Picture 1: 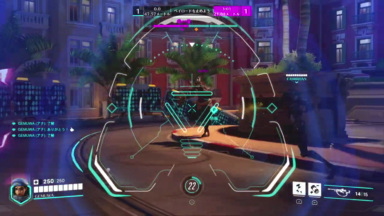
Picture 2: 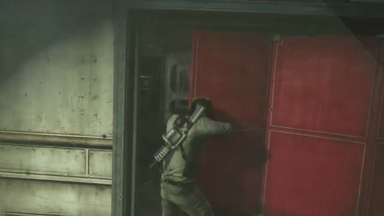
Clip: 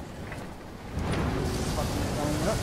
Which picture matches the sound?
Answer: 2